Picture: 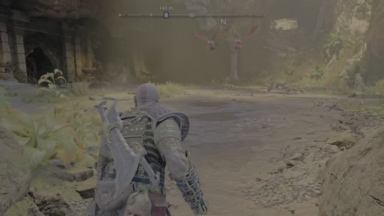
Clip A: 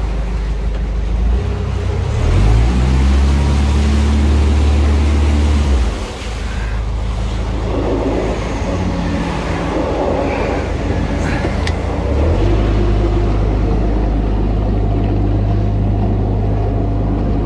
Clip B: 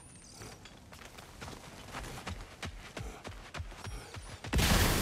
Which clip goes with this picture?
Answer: B